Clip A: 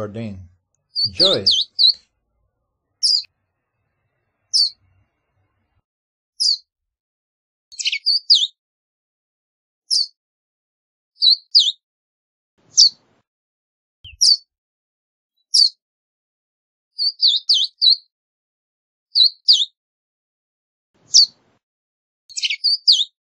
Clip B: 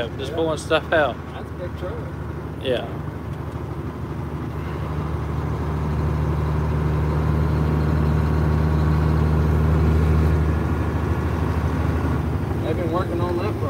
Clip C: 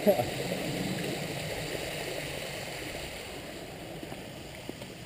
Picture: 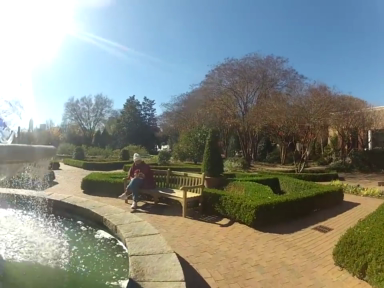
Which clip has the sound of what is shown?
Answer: C